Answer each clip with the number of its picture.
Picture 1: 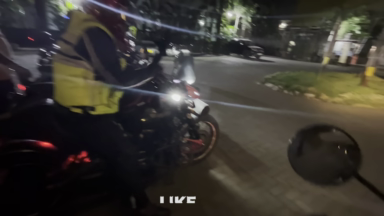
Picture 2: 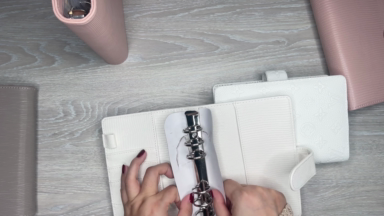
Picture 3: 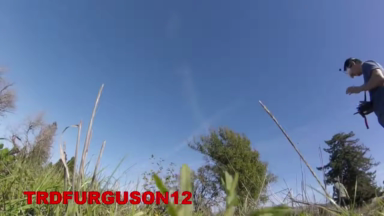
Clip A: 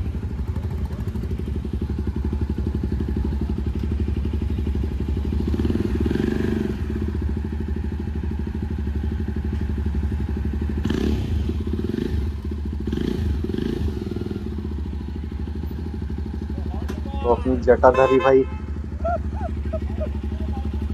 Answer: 1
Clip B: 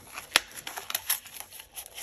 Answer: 2